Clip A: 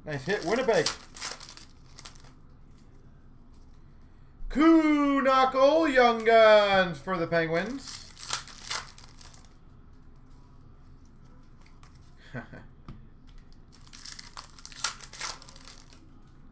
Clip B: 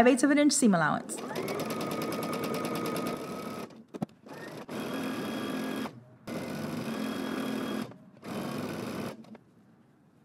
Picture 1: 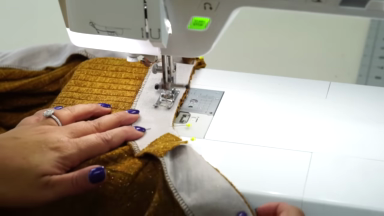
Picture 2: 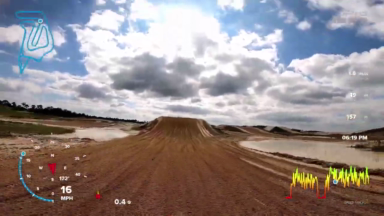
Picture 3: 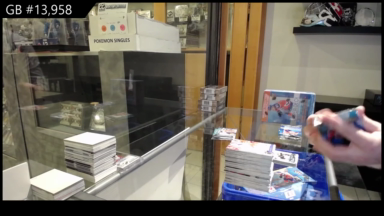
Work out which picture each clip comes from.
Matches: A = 3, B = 1